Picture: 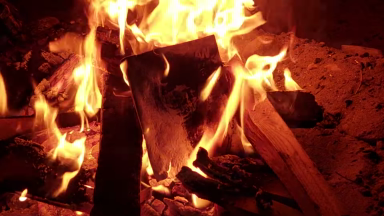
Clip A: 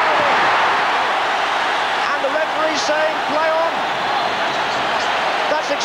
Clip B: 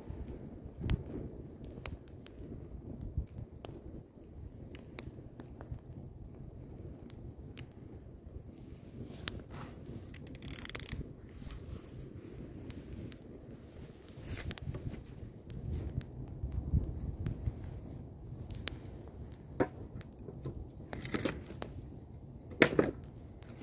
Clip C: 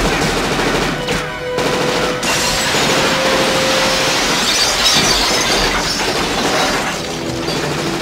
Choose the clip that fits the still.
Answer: B